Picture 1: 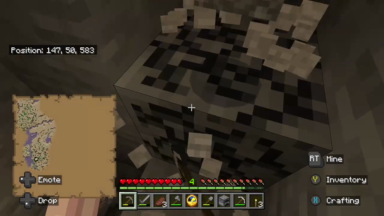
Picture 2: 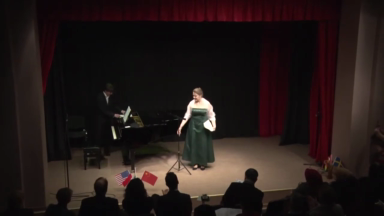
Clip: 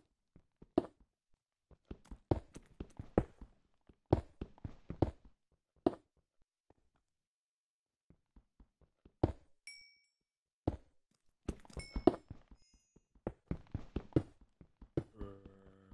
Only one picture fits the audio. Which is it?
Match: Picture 1